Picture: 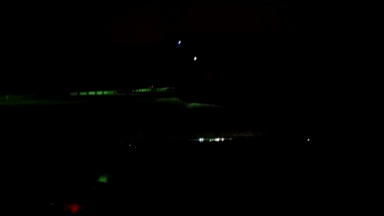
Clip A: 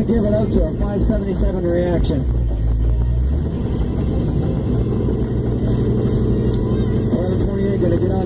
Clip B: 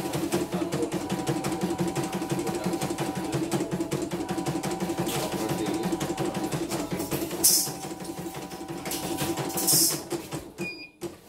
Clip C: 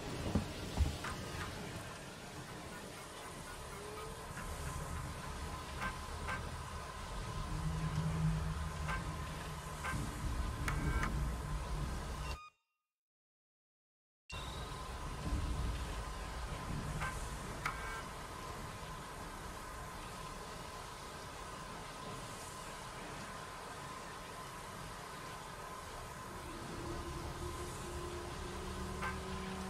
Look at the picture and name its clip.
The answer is A